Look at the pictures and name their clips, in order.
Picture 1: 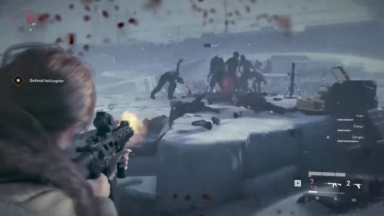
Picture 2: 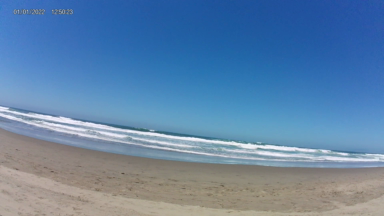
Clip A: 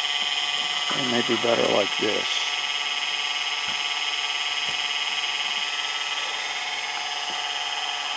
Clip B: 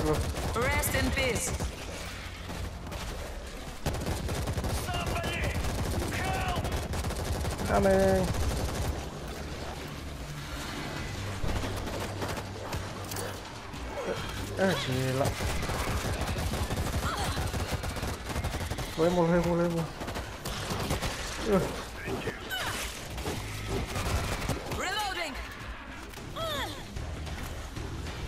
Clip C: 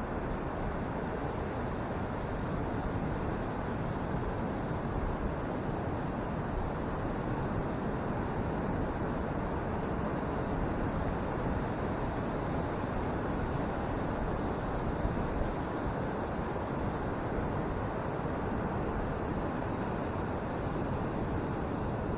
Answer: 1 B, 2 C